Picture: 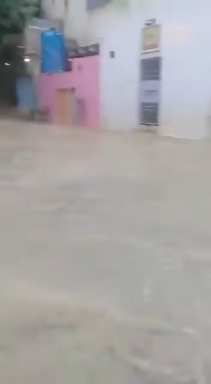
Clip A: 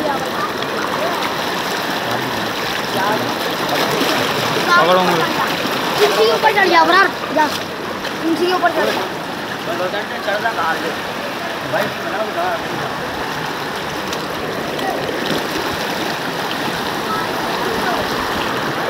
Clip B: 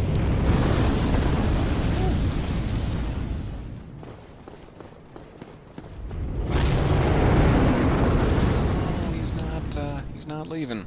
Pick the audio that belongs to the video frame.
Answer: A